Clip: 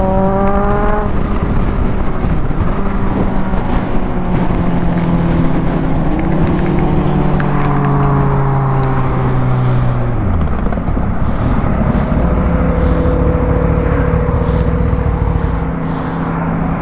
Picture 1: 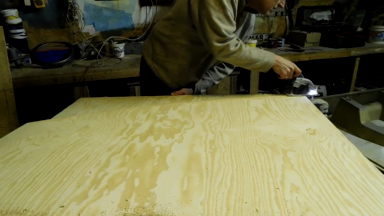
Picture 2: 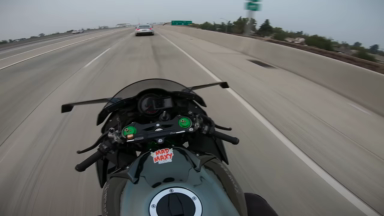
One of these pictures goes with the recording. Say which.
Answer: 2